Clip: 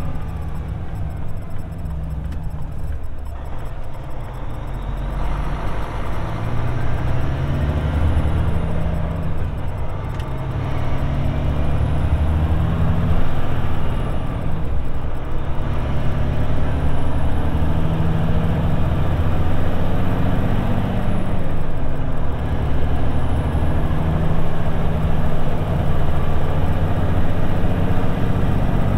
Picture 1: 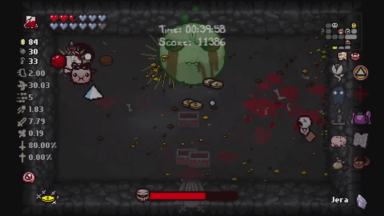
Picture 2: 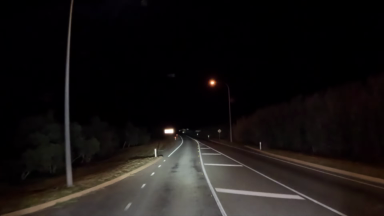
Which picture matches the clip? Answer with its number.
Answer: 2